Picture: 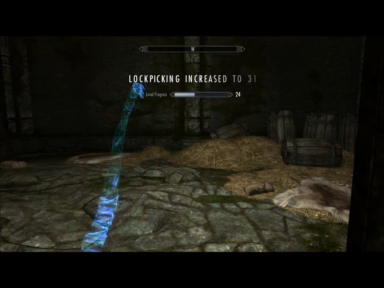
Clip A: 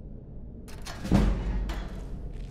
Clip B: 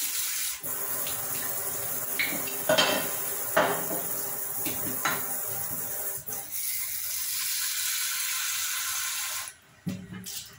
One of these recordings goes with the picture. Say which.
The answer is A